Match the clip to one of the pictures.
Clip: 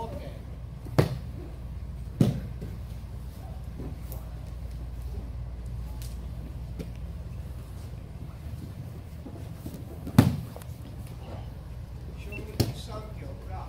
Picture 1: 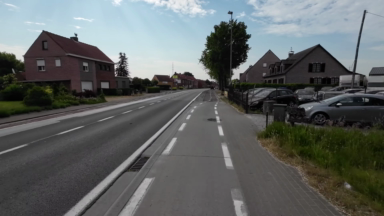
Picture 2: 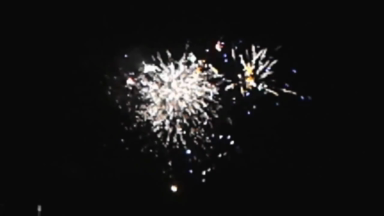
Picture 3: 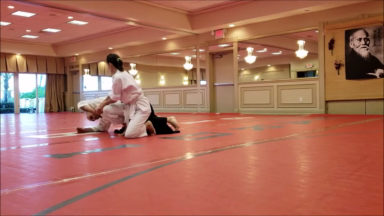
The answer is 3